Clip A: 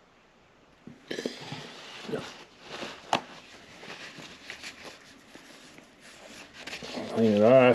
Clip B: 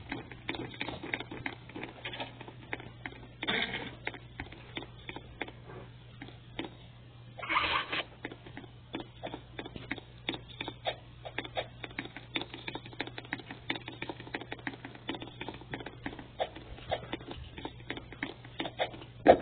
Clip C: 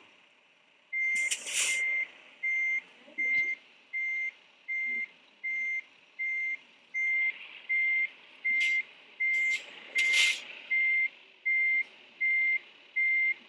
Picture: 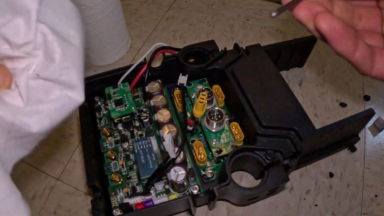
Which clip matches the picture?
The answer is A